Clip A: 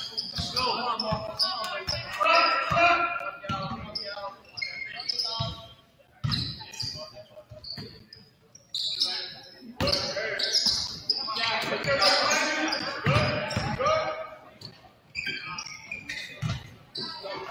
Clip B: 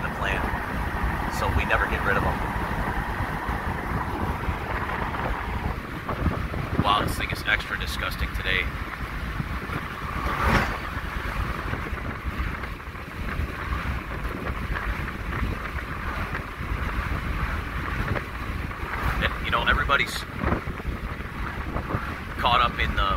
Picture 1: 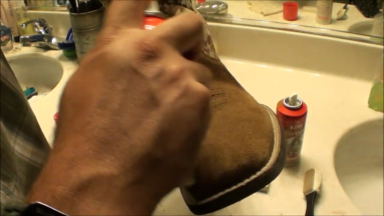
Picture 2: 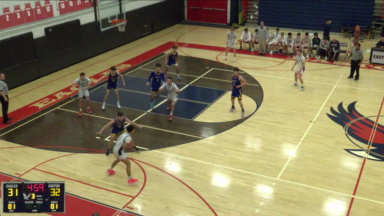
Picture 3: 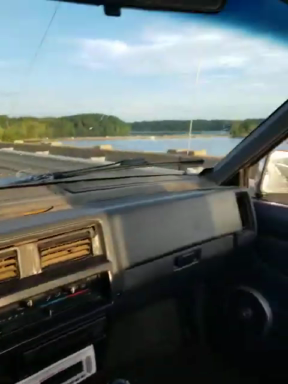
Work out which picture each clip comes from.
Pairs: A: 2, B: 3